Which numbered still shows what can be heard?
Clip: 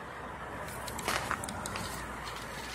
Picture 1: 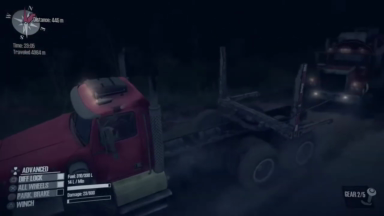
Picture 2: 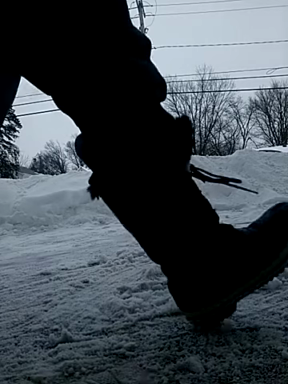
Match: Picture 2